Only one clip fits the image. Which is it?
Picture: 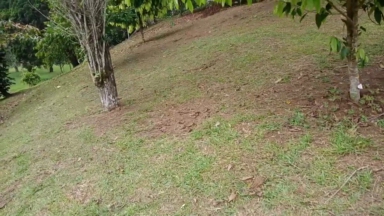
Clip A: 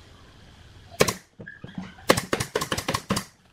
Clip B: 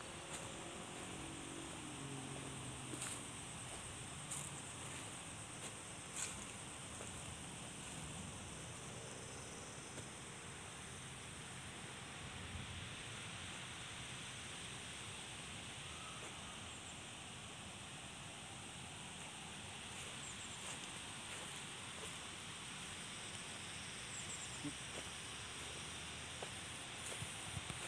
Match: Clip B